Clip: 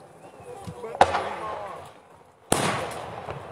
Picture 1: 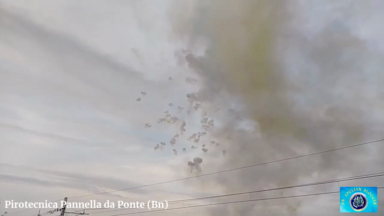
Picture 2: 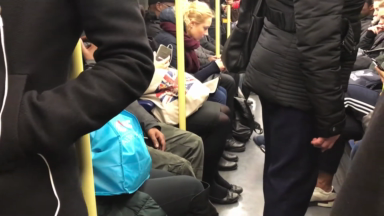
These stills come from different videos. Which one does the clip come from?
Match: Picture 1